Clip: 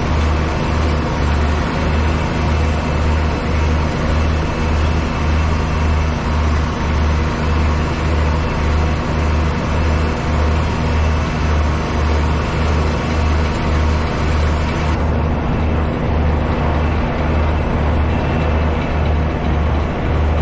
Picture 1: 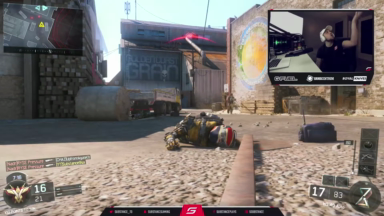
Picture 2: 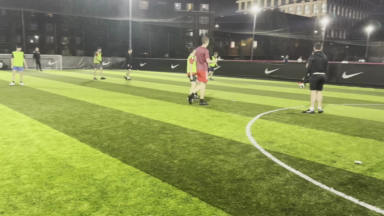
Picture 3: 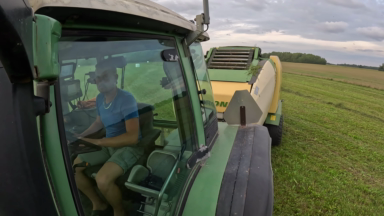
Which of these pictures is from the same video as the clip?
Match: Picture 3